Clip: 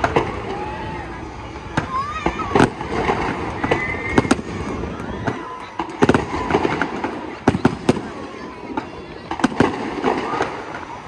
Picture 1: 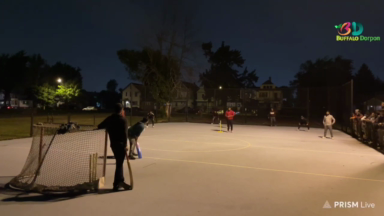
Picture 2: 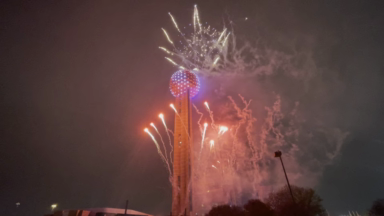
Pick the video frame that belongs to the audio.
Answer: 2